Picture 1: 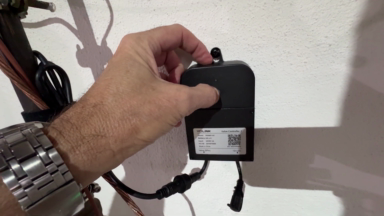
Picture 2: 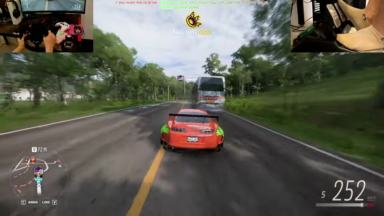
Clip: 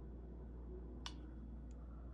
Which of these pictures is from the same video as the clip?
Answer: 1